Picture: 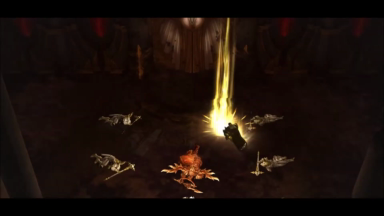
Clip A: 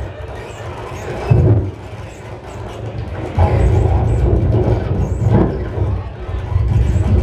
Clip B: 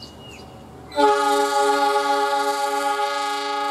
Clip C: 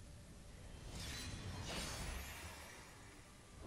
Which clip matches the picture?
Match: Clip C